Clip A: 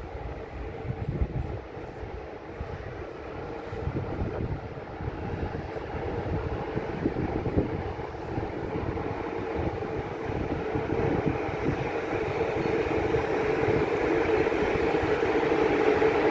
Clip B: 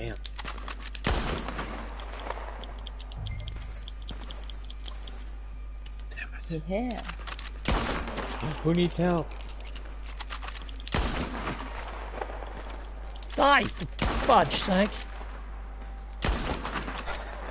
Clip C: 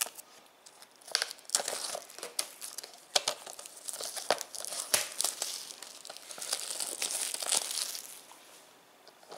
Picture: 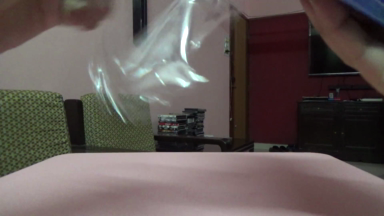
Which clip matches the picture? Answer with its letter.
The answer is C